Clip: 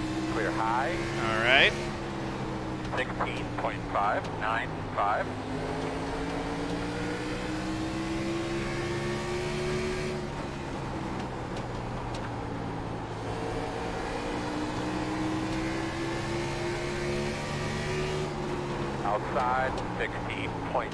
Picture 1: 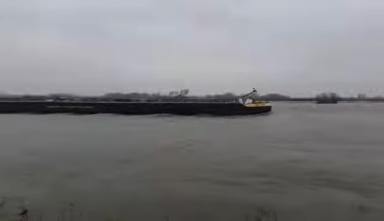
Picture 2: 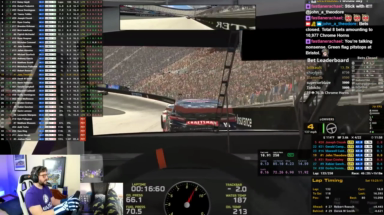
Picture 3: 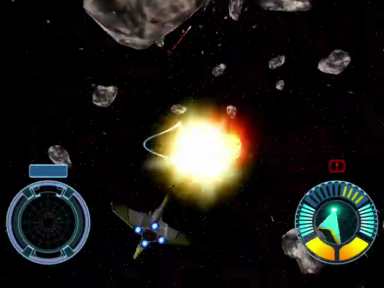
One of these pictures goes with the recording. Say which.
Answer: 2